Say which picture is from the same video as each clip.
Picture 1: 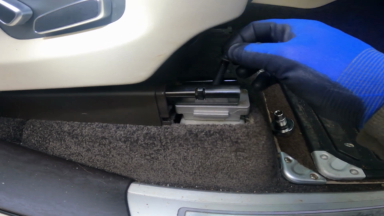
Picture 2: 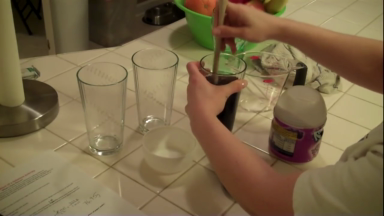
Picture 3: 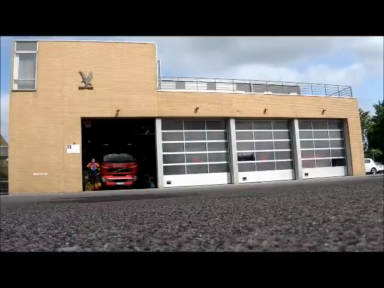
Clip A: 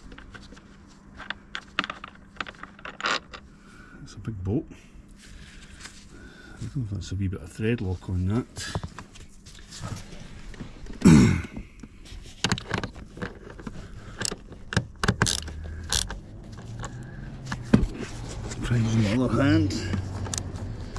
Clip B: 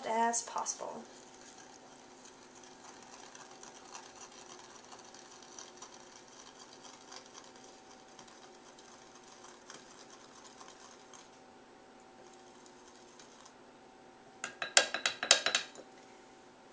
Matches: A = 1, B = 2